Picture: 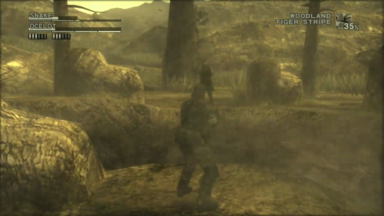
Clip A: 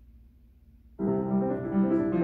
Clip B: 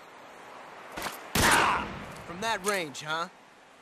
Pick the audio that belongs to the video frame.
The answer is B